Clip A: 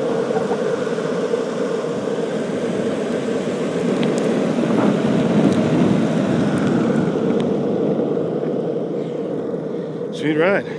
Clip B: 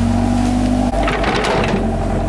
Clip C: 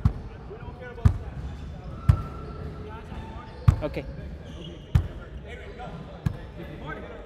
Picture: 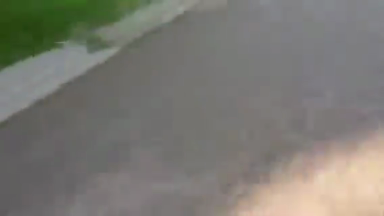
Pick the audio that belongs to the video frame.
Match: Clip A